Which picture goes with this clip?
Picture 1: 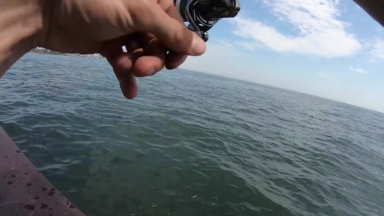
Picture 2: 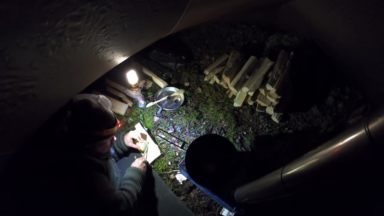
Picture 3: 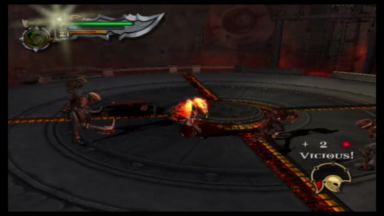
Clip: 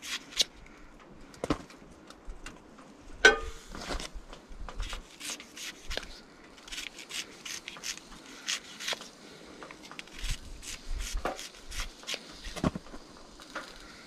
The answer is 2